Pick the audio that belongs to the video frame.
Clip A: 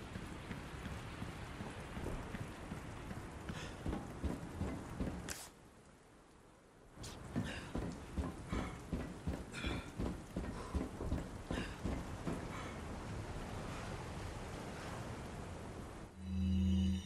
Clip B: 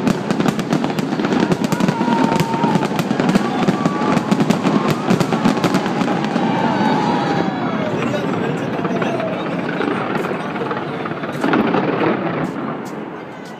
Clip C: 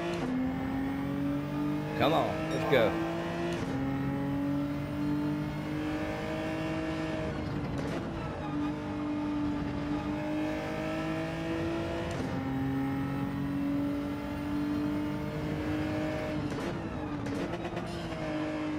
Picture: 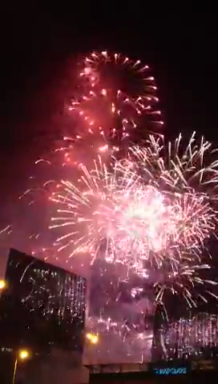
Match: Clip B